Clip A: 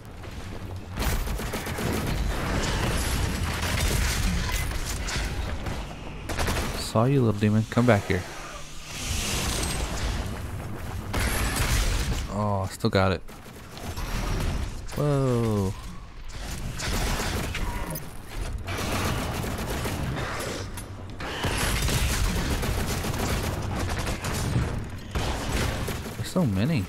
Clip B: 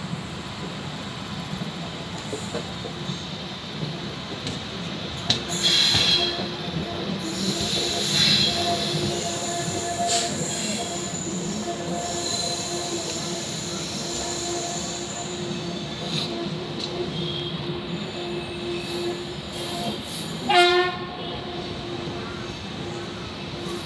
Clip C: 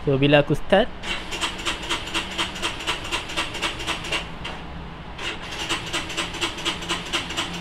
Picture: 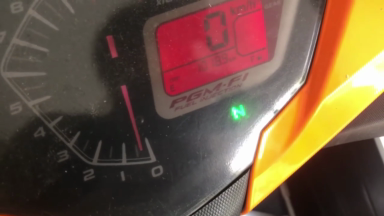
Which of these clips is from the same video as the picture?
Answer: C